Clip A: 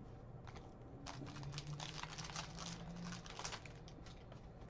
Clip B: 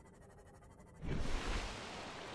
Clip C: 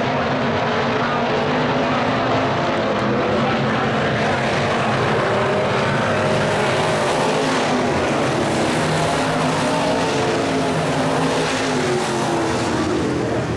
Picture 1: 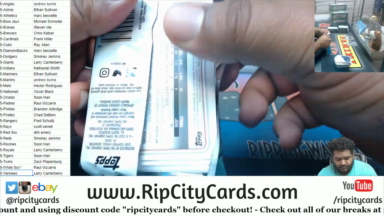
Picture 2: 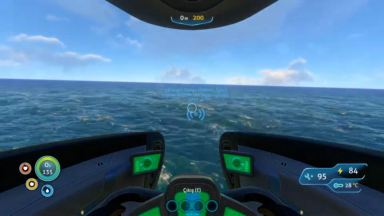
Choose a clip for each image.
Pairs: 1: A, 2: B